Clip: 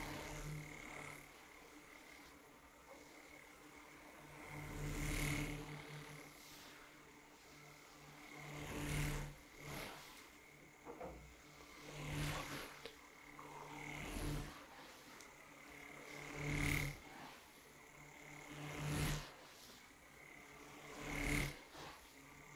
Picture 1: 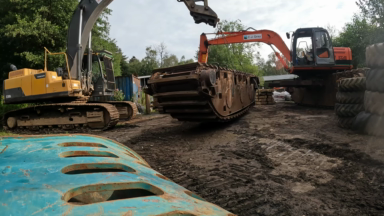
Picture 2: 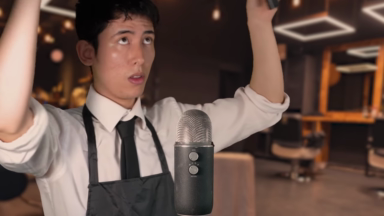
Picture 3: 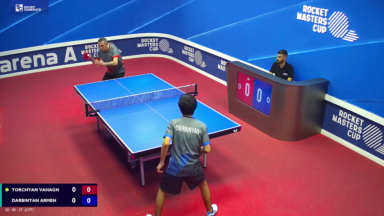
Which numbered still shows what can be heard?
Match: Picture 2